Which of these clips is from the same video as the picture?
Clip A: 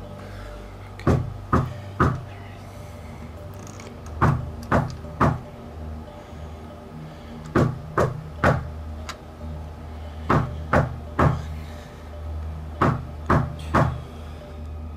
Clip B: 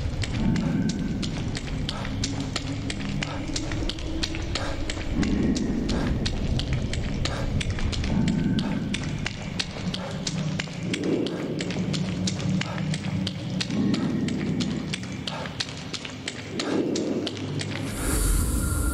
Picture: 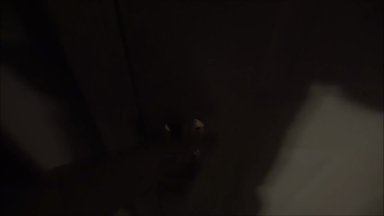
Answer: A